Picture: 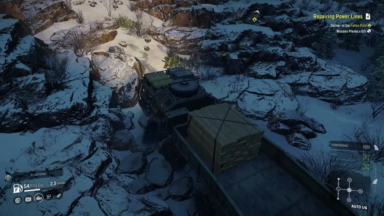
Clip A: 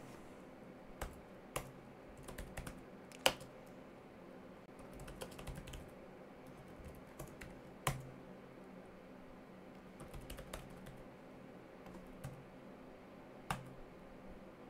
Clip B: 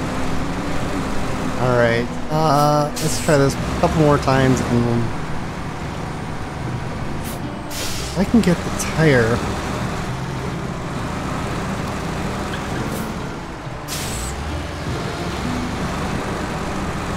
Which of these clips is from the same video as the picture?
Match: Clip B